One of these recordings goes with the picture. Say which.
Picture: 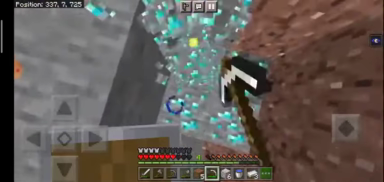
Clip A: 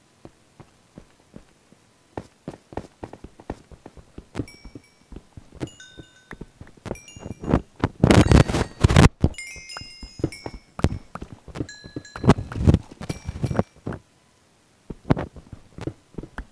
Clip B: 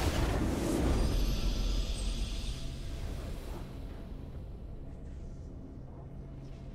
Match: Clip A